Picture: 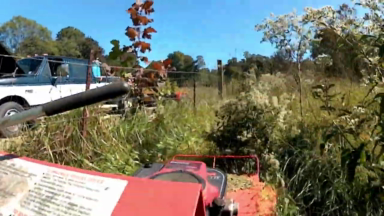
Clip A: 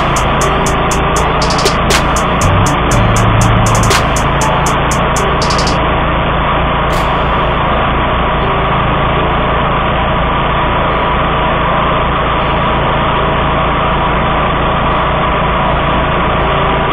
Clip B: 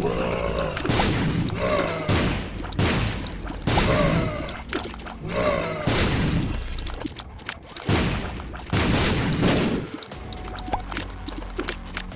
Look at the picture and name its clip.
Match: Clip A